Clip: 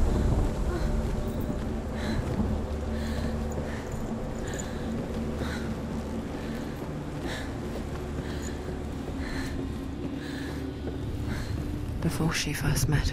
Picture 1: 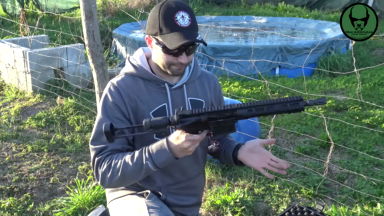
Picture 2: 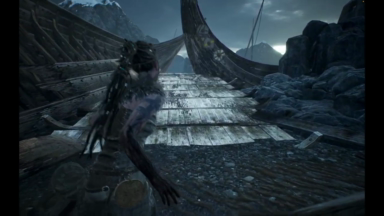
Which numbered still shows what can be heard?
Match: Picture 2